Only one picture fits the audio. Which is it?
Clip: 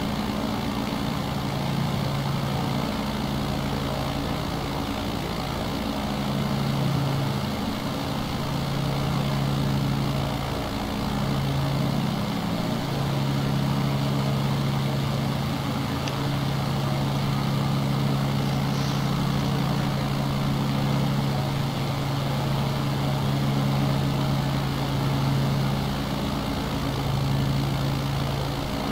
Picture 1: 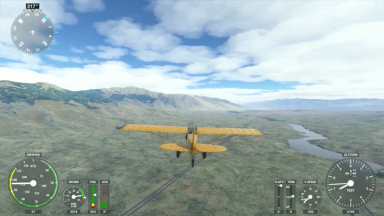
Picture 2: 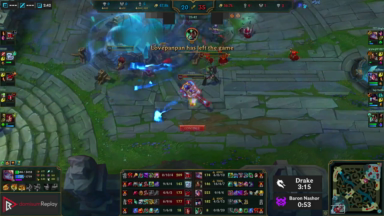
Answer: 1